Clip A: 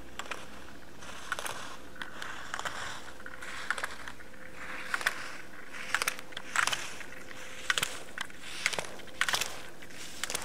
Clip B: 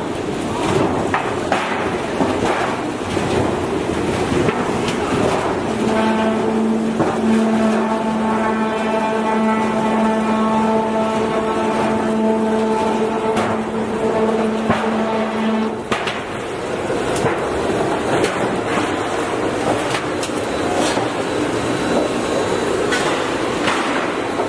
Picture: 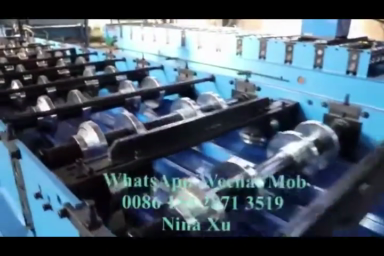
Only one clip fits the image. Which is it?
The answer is B